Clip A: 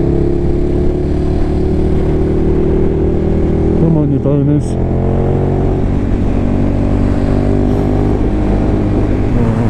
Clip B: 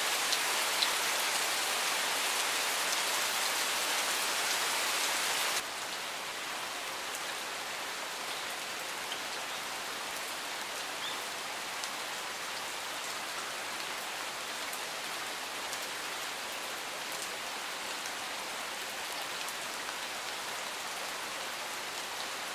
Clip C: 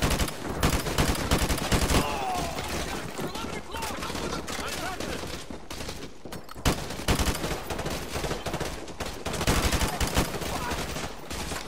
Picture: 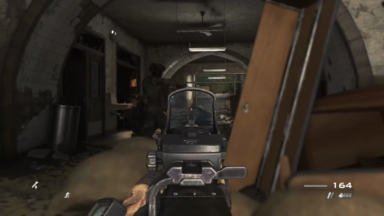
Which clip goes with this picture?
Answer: C